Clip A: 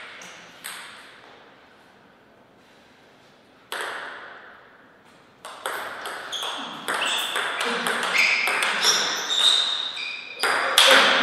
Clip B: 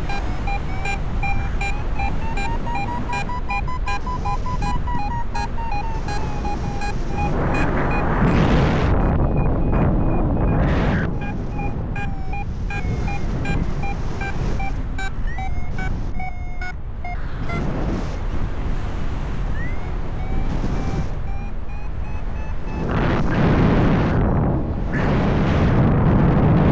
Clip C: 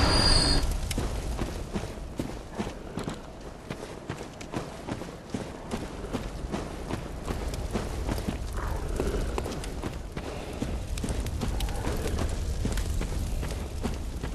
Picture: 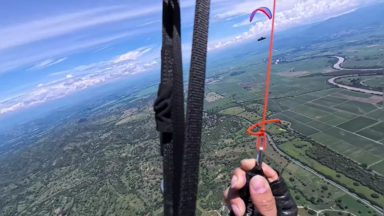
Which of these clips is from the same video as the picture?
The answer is B